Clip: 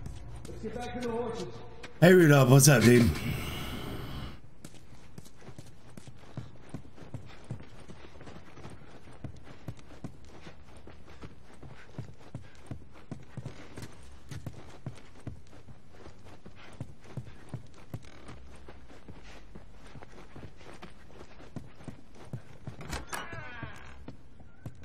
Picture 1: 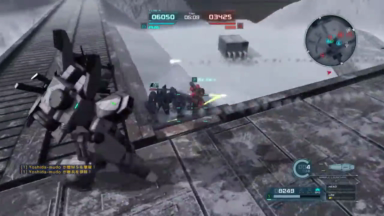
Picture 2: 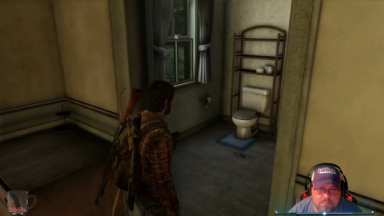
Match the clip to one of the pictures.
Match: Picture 2